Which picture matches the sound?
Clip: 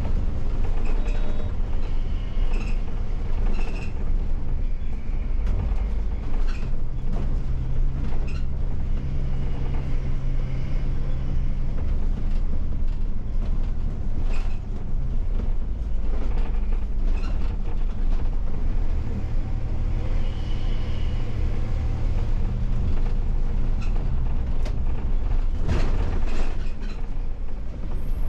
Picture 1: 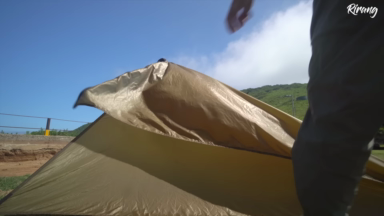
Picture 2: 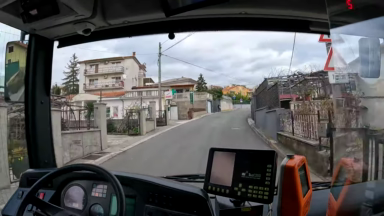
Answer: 2